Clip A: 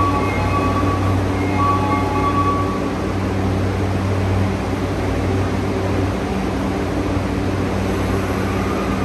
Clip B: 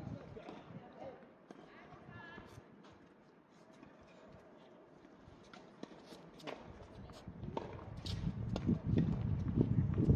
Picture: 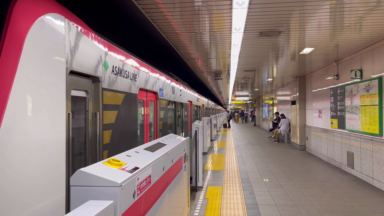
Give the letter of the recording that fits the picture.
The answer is A